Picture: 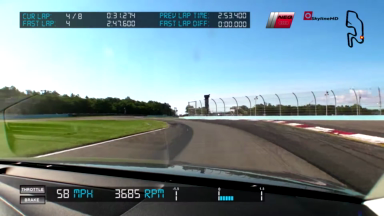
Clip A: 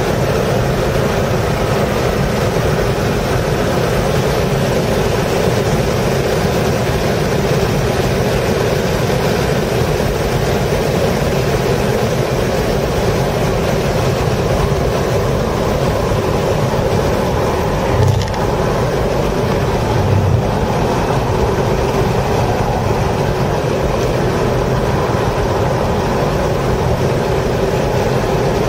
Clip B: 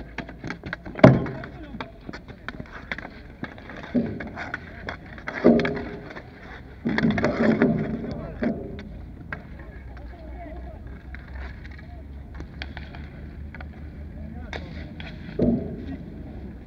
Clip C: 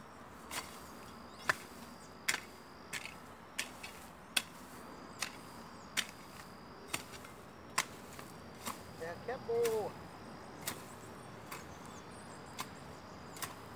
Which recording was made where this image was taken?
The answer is A